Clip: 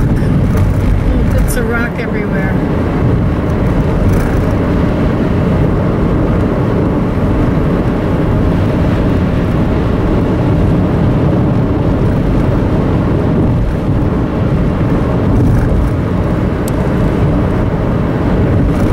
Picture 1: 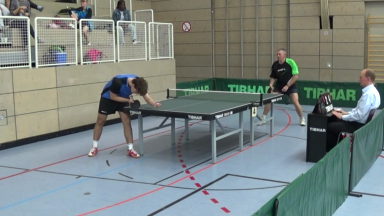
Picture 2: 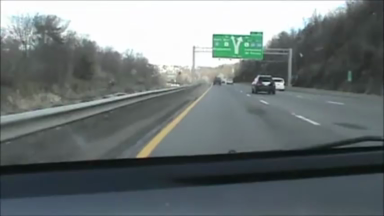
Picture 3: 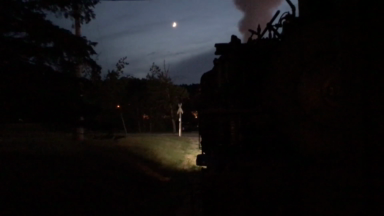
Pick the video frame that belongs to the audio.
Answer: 2